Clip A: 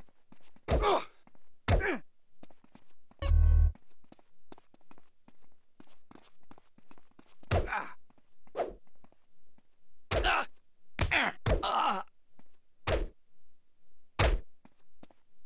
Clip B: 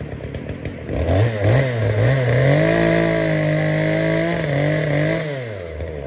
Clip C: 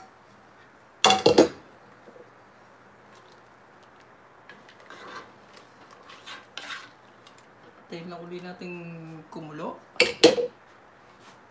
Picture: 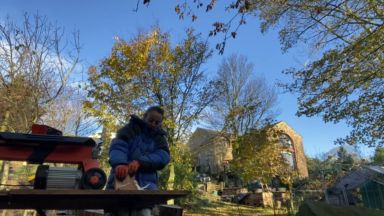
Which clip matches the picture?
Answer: B